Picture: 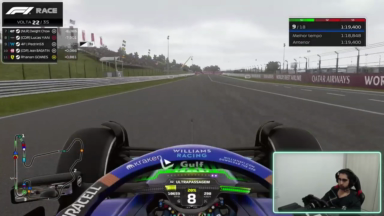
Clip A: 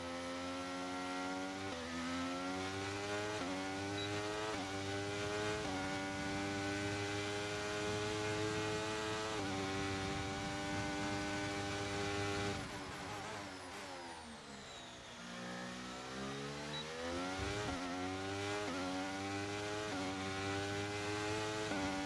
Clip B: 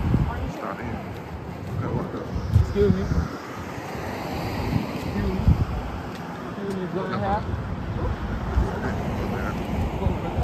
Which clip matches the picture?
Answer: A